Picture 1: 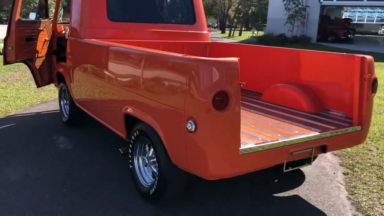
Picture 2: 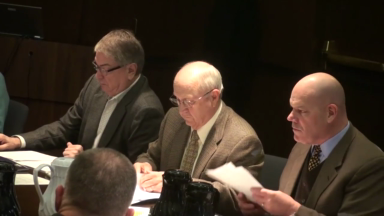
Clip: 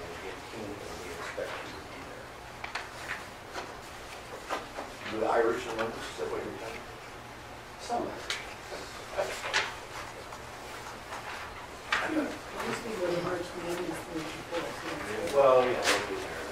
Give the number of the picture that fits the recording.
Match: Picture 2